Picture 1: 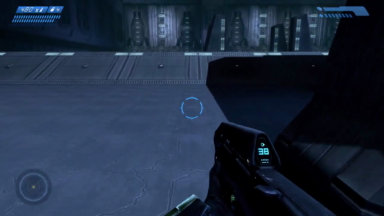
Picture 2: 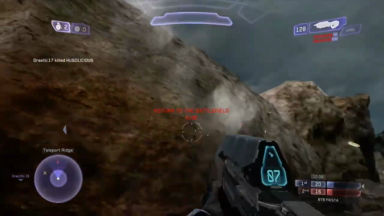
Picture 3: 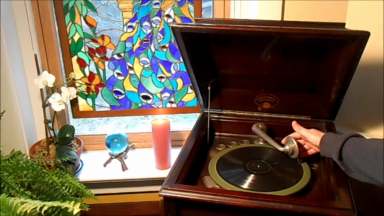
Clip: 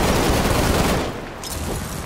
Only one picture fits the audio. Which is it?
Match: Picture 2